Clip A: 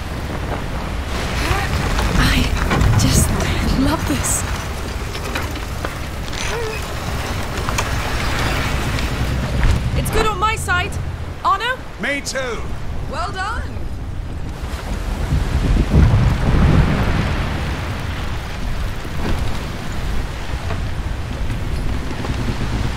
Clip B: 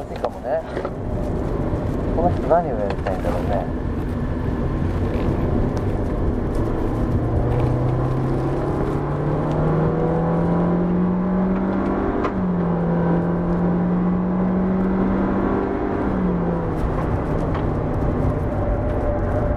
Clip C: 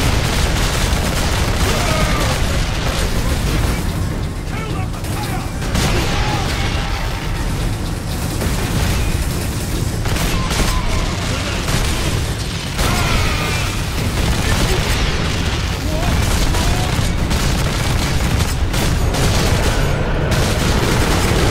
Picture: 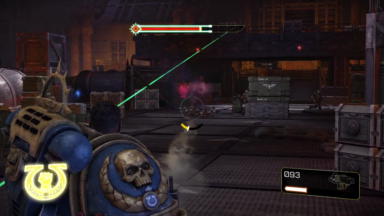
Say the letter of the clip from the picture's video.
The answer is C